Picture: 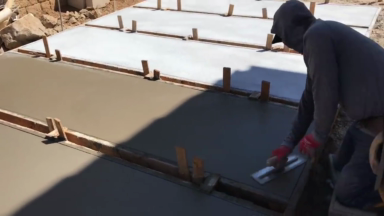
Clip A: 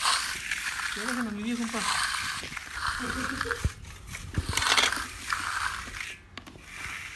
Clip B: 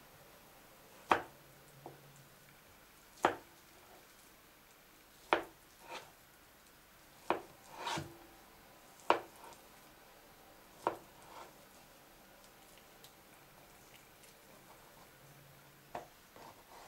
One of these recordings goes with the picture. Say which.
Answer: A